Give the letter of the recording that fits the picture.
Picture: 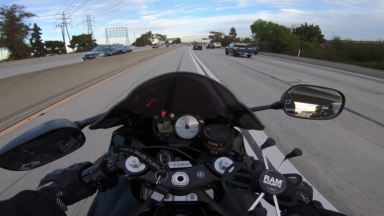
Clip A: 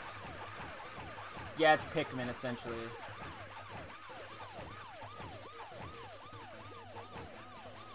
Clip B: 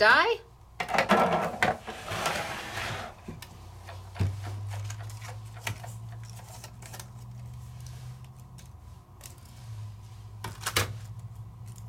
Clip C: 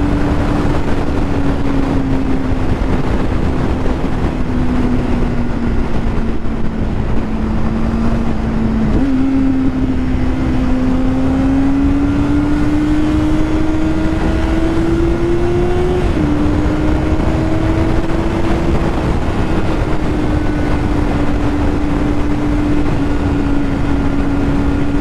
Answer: C